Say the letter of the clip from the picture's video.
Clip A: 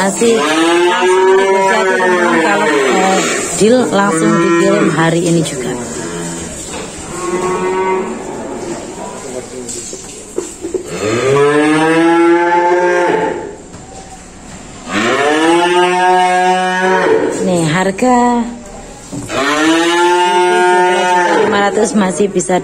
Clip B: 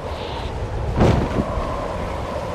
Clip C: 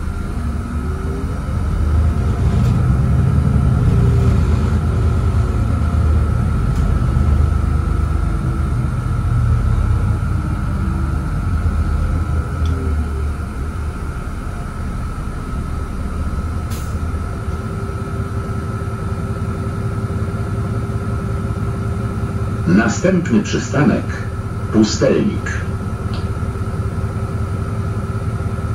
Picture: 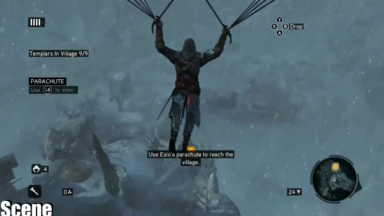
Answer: B